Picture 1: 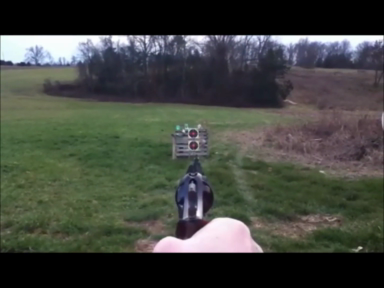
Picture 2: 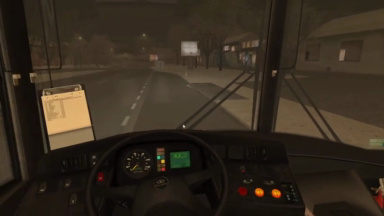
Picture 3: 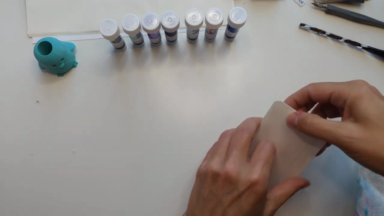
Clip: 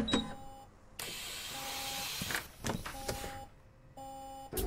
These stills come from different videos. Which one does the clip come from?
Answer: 2